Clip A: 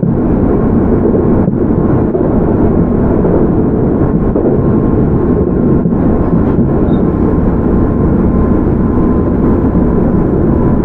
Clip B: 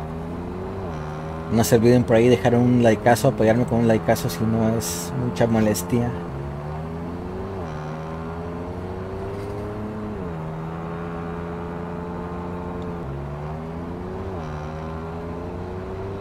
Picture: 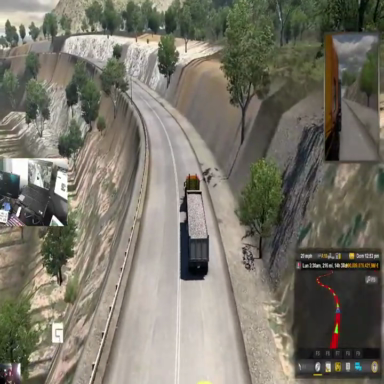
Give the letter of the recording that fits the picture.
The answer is B